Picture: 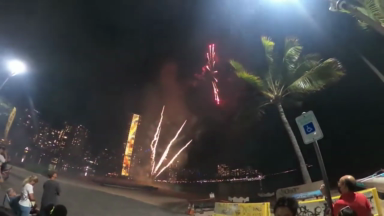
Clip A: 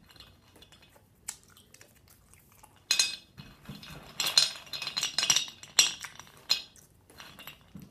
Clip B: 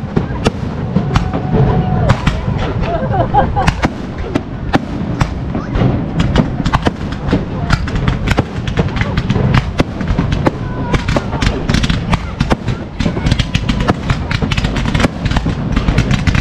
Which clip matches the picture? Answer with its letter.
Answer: B